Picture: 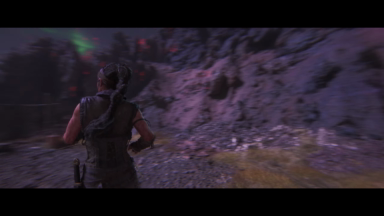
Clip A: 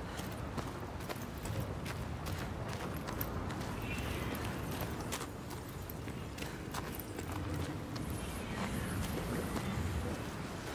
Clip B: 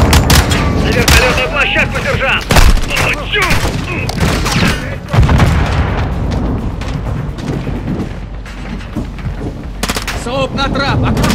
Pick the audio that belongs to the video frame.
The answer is A